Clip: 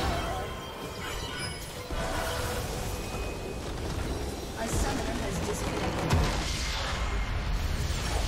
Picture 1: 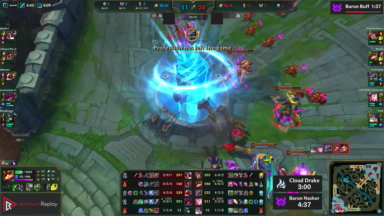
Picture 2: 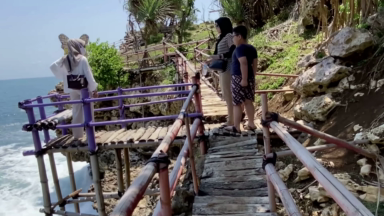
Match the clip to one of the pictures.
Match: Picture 1